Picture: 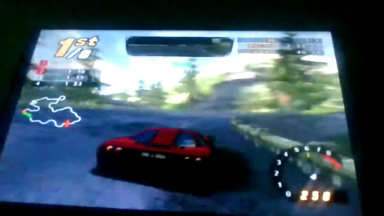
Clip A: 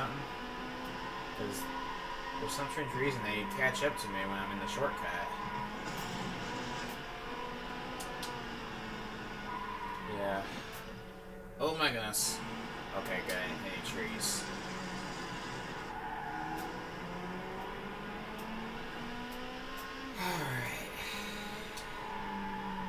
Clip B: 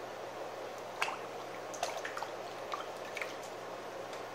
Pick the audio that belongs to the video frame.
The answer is A